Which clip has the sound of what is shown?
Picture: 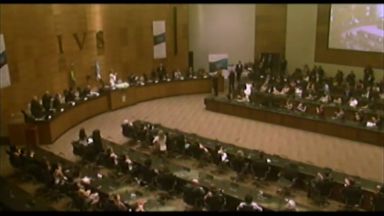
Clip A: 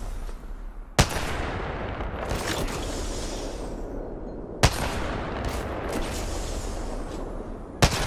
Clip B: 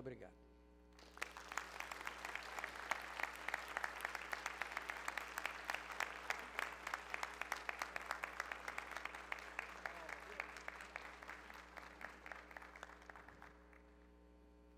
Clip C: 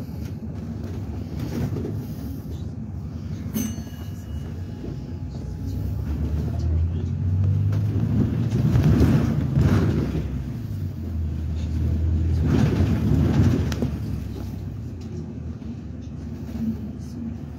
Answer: B